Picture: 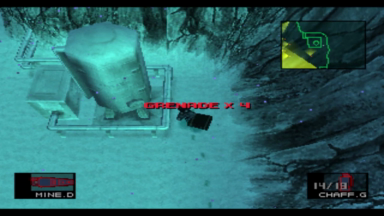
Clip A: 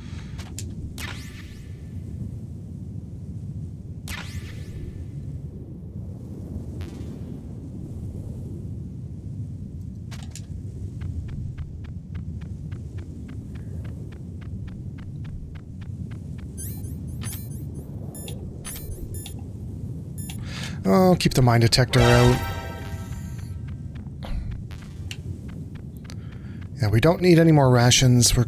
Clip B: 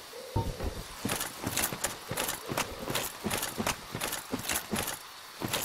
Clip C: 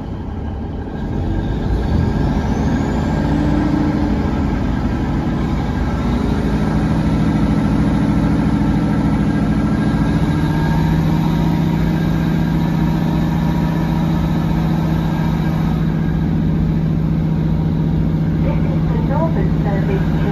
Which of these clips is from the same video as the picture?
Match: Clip A